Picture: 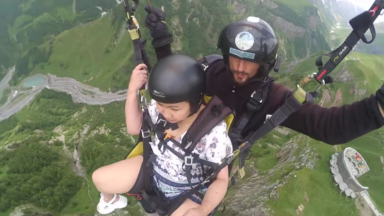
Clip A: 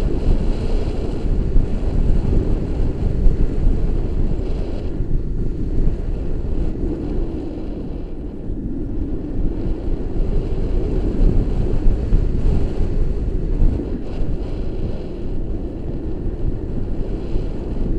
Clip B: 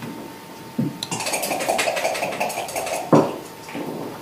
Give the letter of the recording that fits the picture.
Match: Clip A